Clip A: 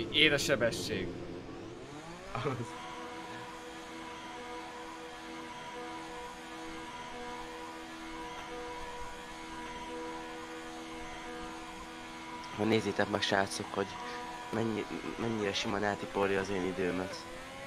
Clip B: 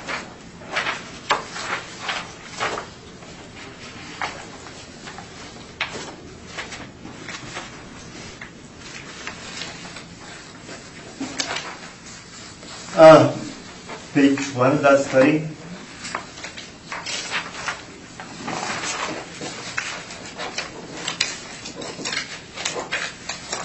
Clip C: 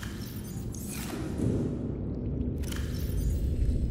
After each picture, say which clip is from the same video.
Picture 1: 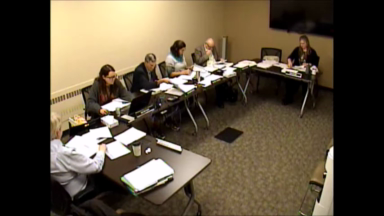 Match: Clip B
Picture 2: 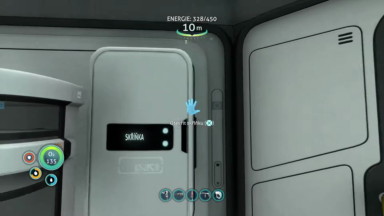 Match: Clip C